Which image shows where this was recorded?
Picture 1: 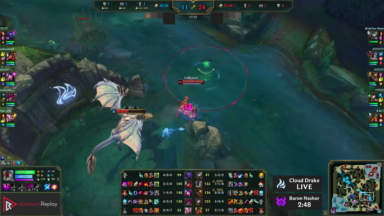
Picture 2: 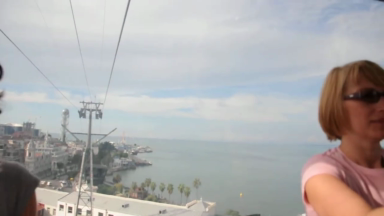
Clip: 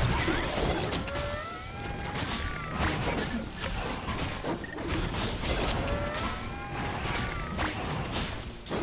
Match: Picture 1